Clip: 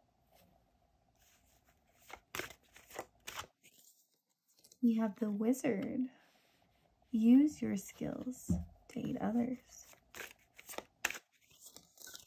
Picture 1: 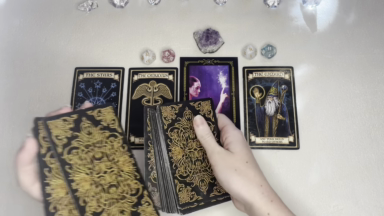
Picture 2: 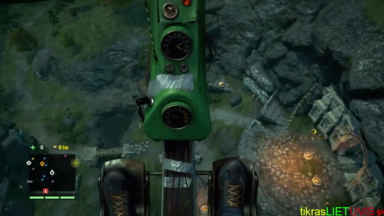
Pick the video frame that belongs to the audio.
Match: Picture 1